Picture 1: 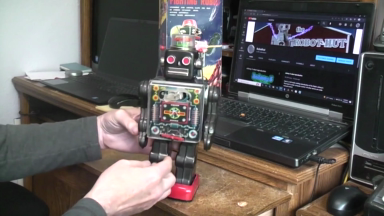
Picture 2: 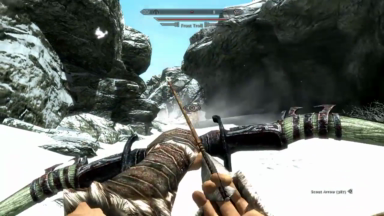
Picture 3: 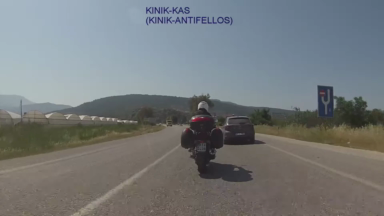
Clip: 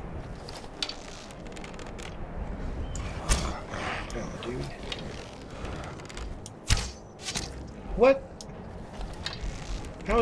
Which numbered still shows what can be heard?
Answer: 2